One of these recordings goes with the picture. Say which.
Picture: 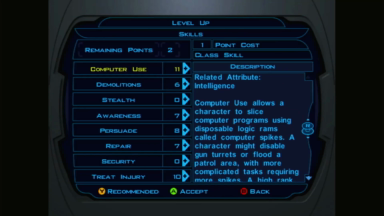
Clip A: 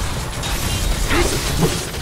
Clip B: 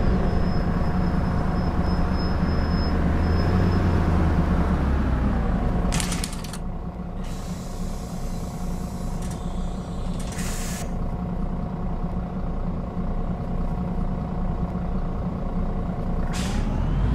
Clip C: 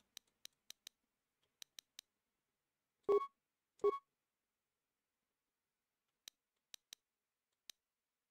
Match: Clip C